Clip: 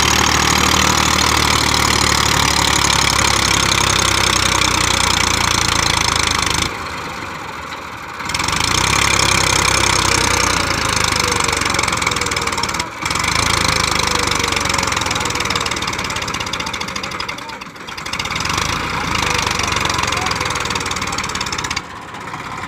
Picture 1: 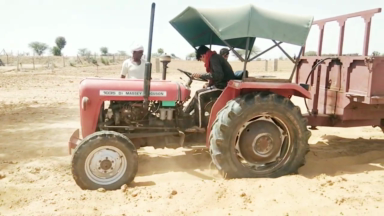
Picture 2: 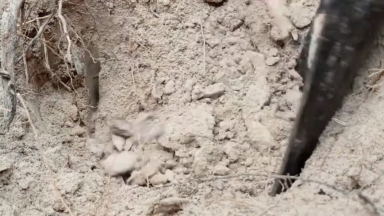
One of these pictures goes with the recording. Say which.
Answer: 1